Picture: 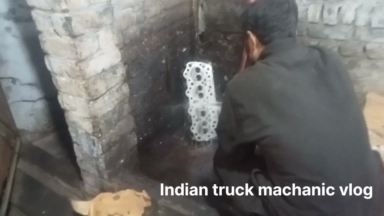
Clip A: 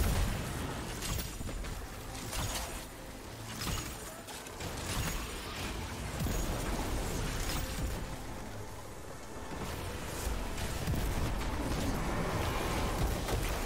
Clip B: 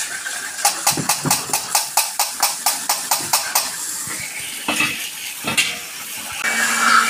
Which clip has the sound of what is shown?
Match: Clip B